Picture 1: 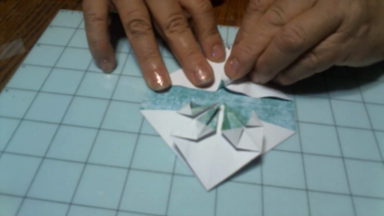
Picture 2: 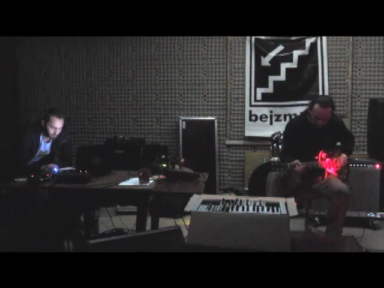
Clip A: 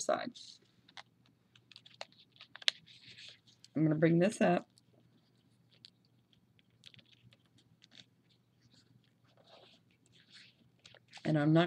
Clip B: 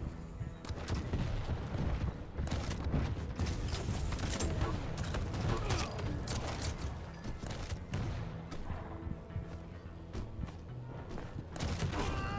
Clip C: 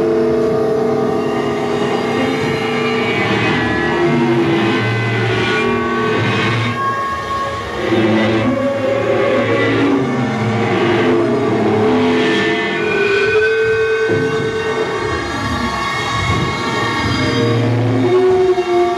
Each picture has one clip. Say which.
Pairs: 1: A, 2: C